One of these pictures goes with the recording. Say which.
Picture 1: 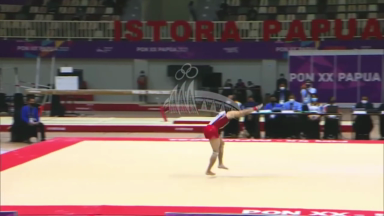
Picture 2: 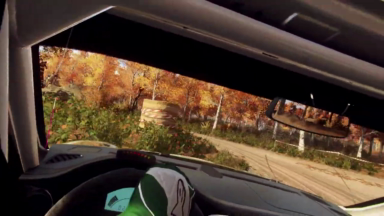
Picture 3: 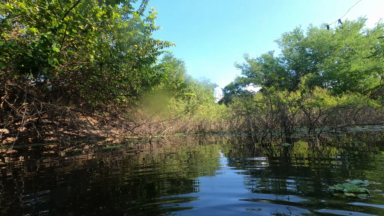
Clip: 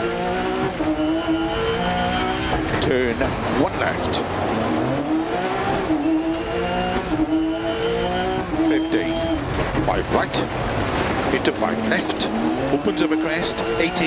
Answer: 2